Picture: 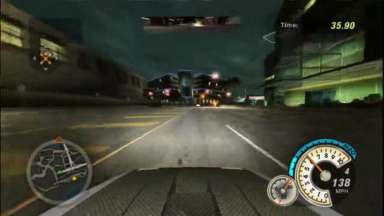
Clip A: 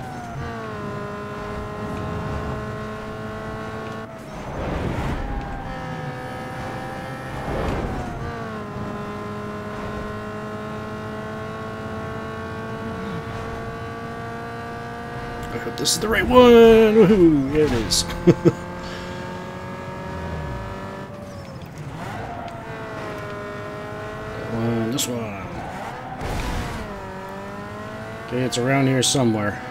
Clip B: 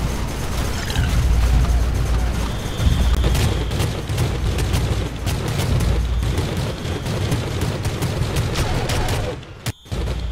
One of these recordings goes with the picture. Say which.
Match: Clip A